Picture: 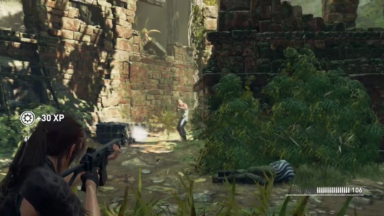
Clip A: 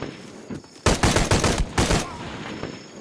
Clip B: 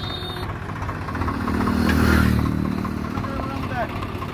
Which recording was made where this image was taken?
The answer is A